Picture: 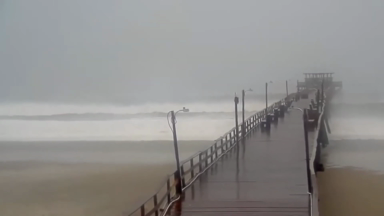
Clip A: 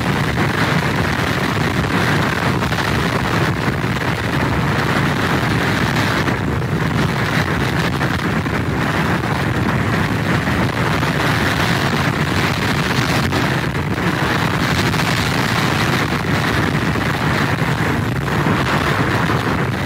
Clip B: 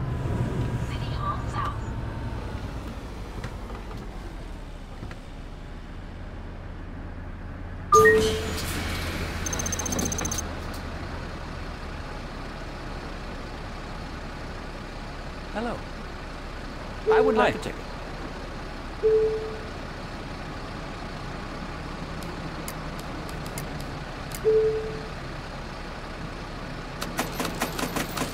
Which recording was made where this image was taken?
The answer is A